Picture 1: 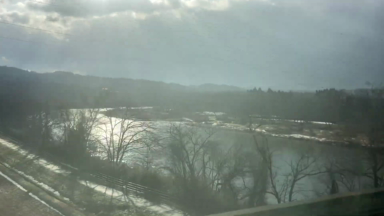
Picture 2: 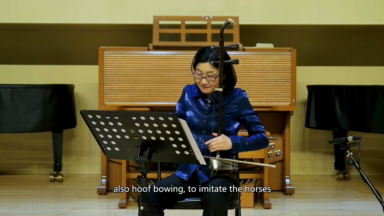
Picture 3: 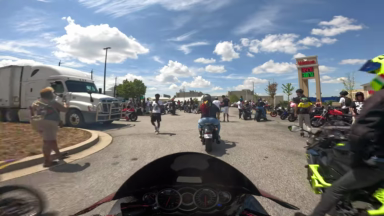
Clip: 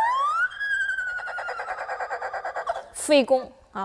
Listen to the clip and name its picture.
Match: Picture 2